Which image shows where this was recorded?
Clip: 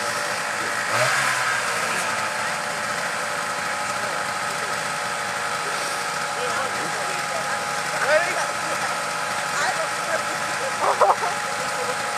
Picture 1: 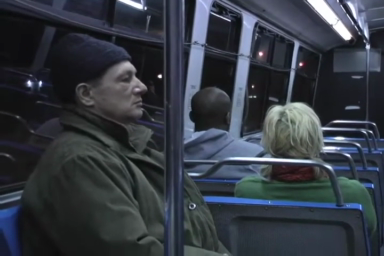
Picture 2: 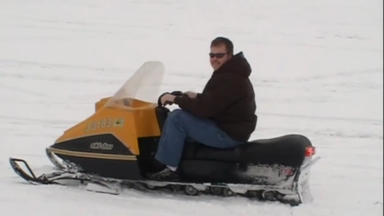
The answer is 2